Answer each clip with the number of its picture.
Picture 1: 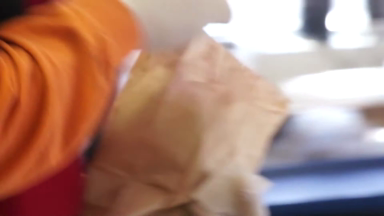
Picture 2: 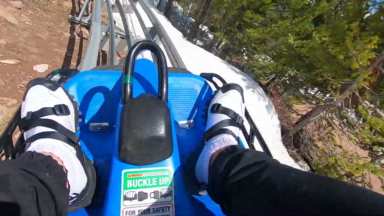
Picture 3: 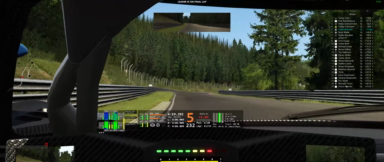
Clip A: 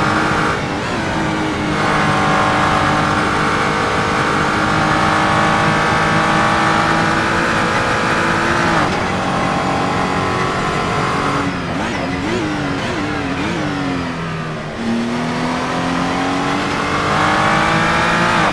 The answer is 3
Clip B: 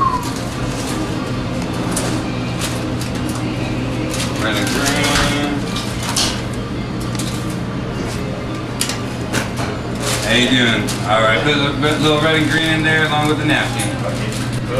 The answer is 1